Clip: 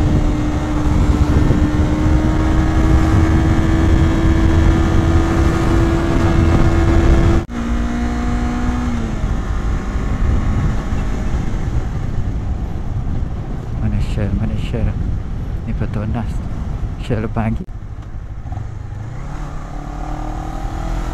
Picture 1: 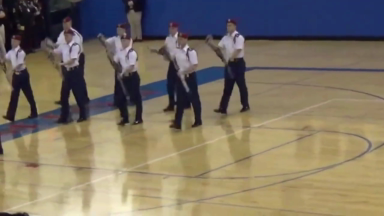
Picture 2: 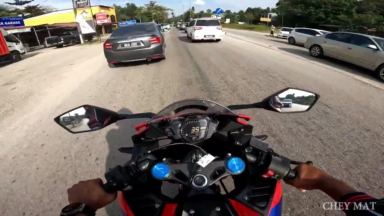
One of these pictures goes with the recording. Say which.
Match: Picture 2